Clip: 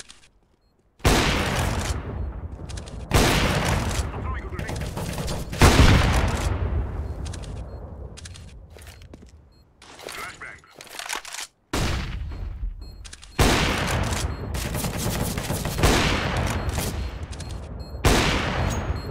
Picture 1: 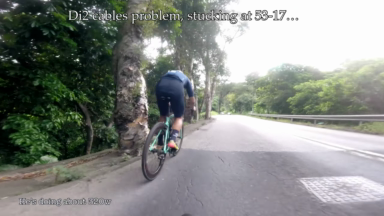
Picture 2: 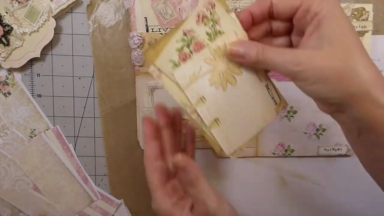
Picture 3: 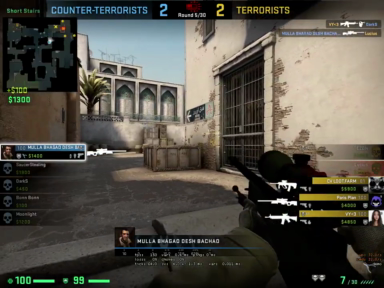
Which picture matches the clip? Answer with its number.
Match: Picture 3